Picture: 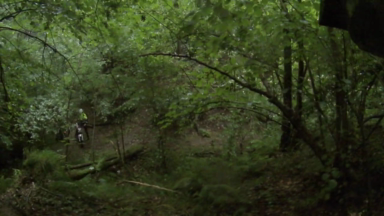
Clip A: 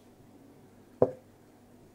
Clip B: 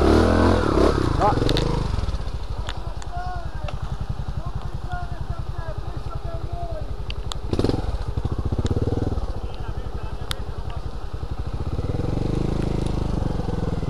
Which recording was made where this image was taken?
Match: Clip B